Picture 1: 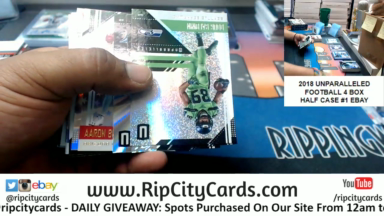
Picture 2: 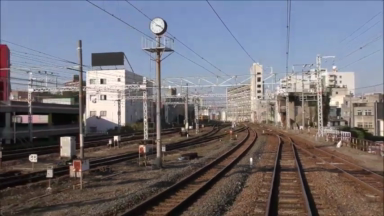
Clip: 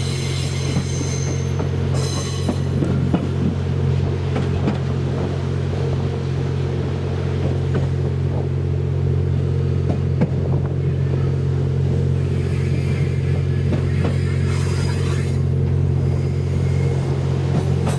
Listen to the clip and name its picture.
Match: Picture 2